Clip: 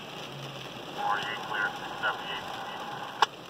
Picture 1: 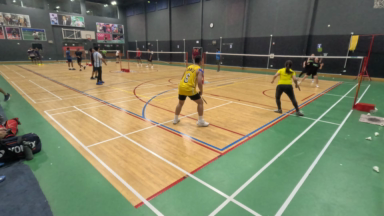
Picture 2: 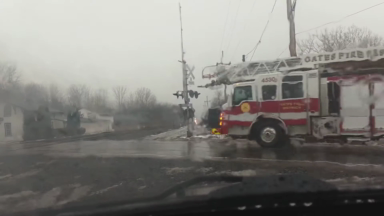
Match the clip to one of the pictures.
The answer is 2